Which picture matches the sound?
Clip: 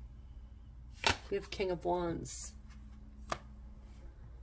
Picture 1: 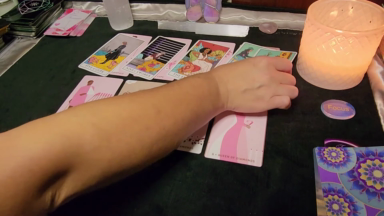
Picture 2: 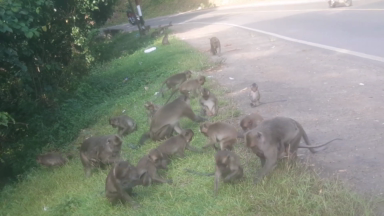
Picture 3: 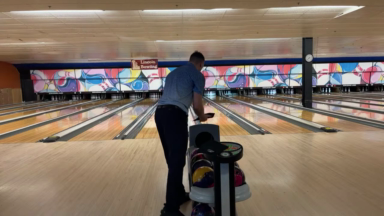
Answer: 1